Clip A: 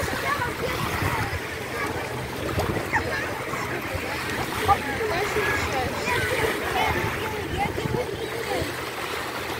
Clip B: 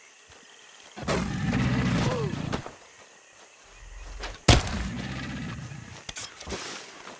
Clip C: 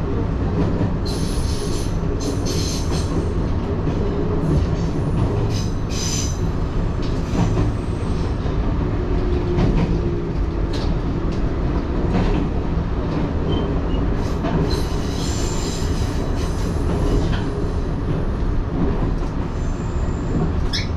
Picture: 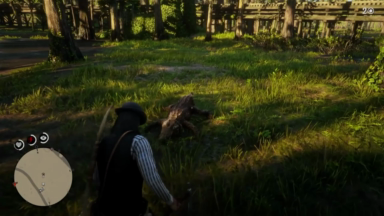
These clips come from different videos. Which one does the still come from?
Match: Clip B